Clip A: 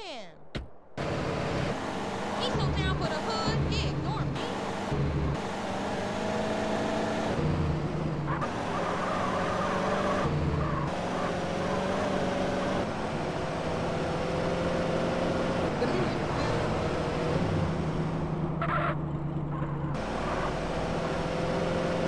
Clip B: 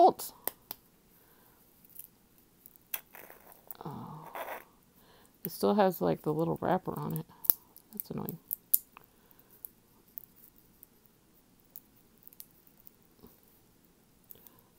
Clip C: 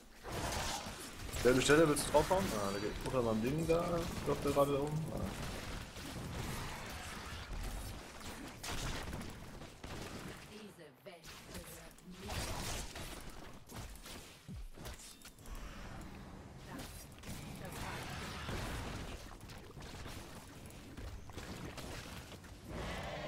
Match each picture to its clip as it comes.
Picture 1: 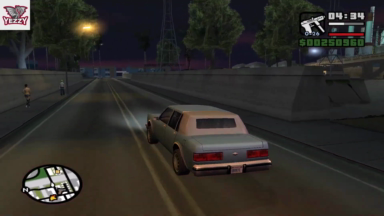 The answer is A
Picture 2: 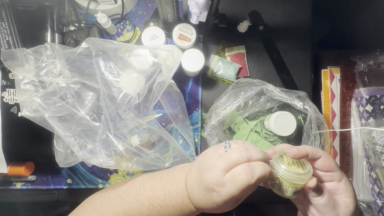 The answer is B